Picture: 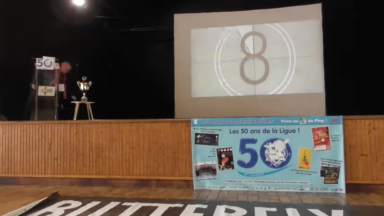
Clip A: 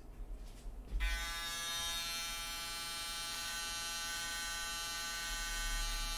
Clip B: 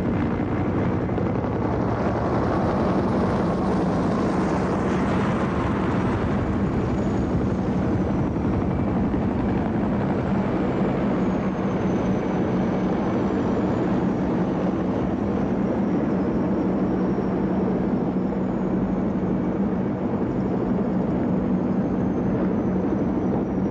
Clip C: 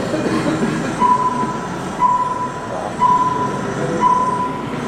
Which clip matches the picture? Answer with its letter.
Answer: C